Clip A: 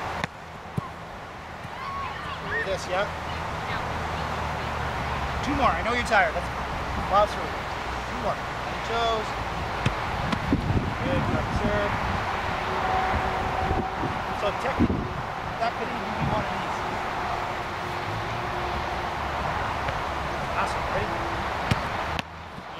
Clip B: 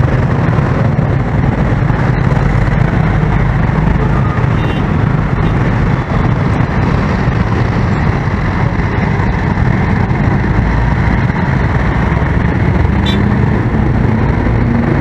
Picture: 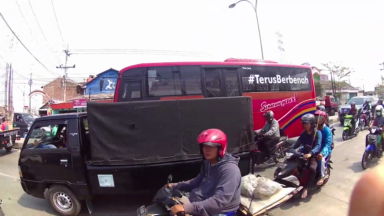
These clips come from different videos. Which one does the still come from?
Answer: B